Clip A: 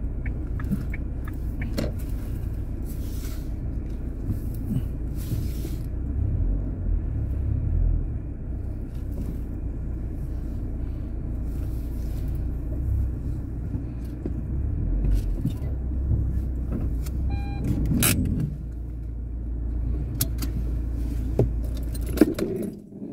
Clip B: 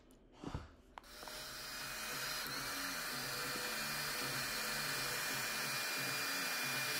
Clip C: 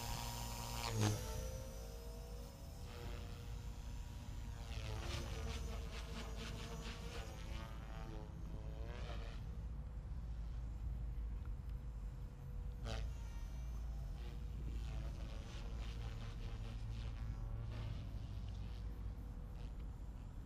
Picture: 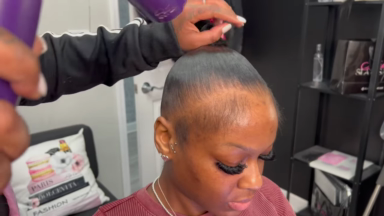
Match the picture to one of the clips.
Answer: B